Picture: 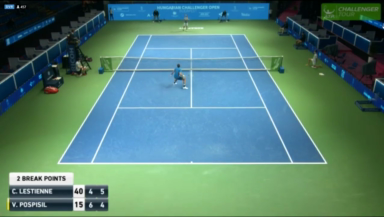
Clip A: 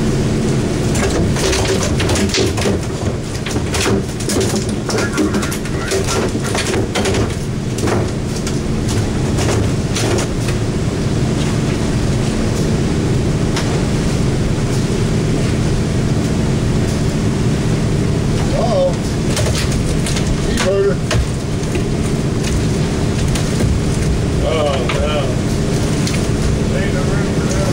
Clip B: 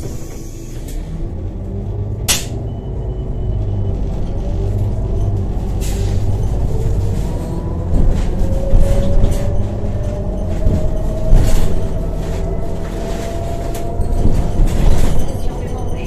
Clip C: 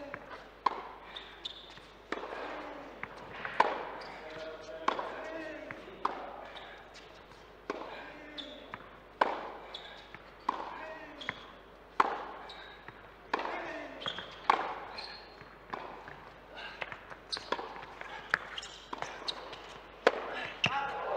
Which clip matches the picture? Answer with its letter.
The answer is C